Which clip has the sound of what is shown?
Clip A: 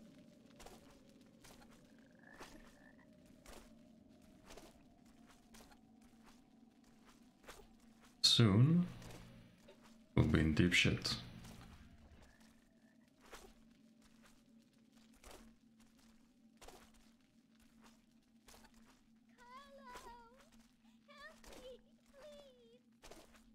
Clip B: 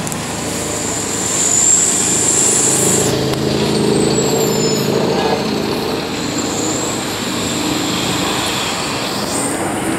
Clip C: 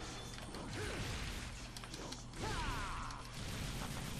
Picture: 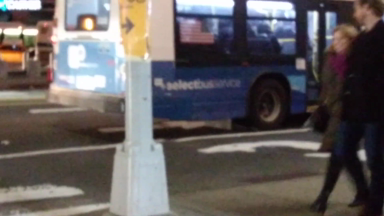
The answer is B